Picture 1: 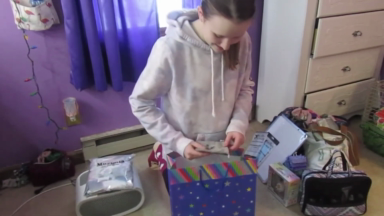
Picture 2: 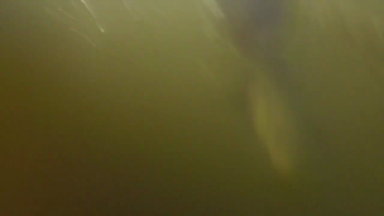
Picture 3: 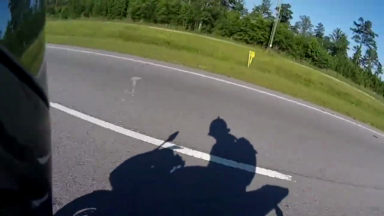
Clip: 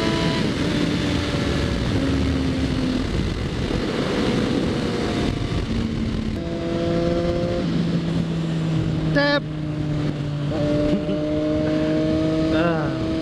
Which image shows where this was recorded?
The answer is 3